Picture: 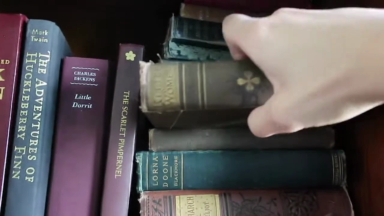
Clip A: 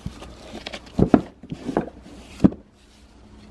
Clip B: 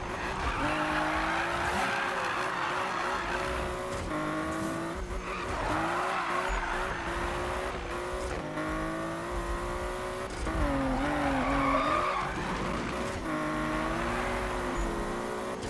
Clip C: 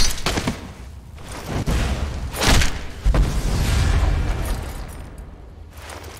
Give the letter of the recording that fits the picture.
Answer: A